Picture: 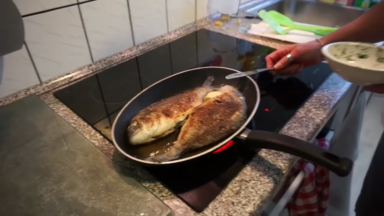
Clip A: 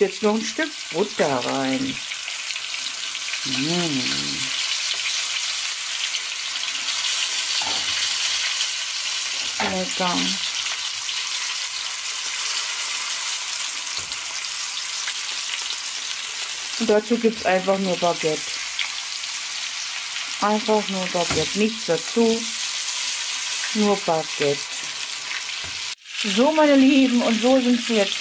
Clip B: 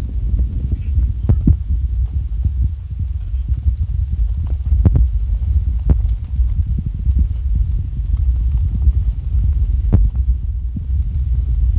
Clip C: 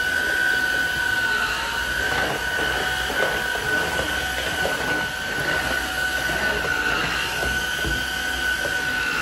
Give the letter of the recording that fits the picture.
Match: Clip A